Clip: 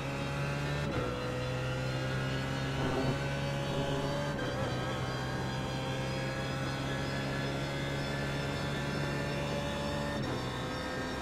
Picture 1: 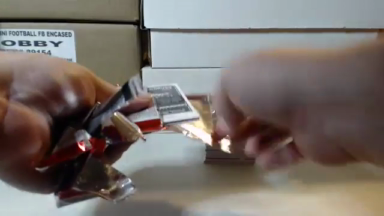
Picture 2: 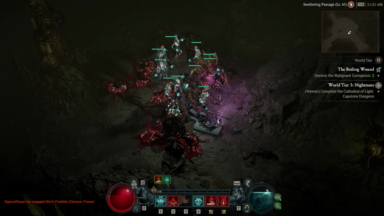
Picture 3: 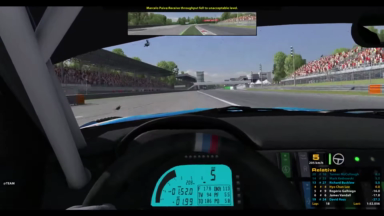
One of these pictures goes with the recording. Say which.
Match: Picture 3